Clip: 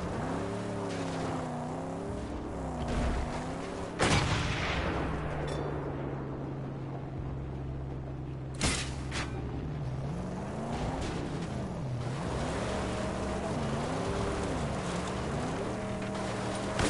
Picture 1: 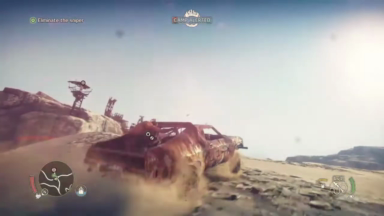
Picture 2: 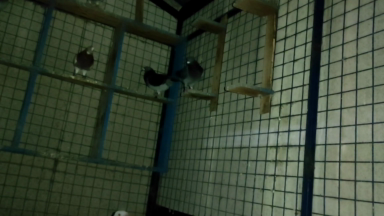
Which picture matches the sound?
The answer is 1